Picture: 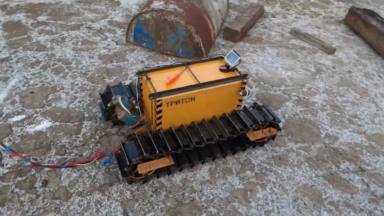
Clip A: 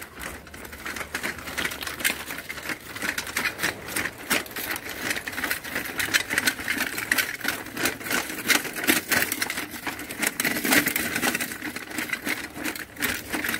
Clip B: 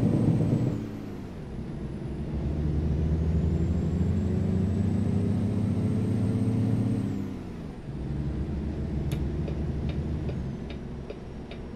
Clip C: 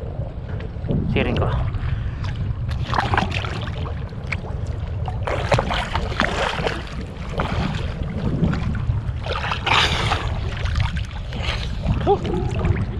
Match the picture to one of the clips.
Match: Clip A